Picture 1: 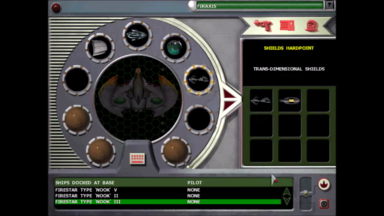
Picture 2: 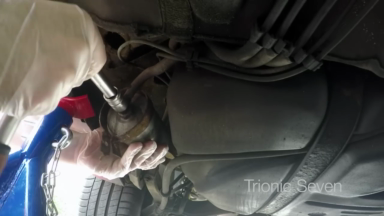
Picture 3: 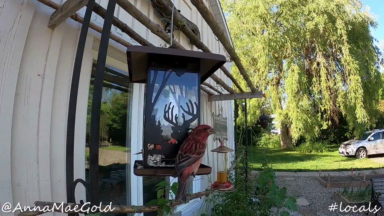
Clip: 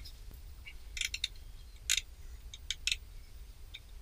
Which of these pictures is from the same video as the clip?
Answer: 2